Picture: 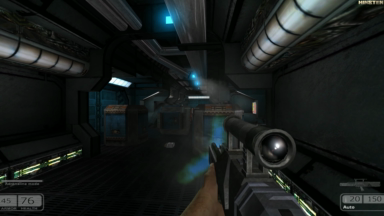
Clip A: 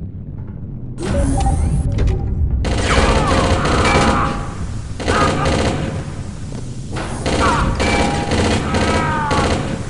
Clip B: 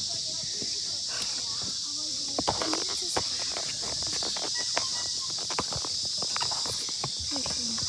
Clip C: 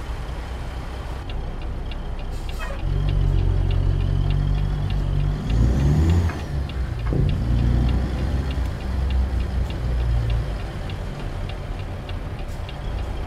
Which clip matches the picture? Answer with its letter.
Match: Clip A